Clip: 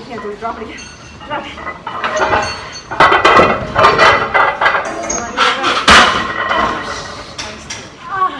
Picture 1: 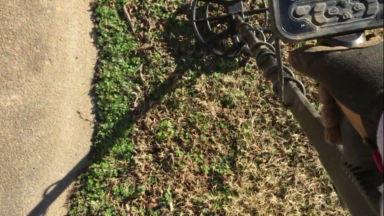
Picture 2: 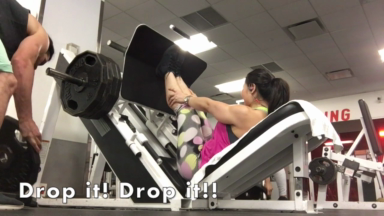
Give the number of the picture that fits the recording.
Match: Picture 2